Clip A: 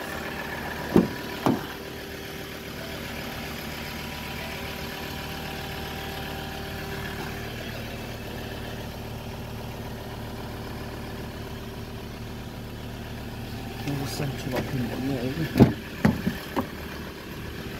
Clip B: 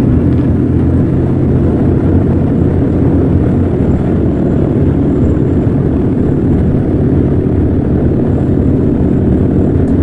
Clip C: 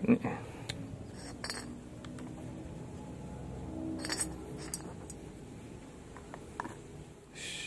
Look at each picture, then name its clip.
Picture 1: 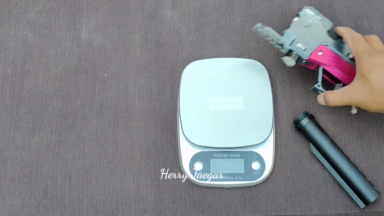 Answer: C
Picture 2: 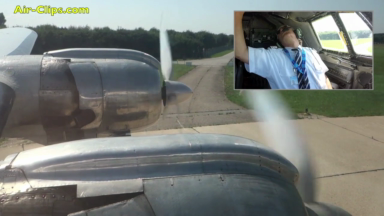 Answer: B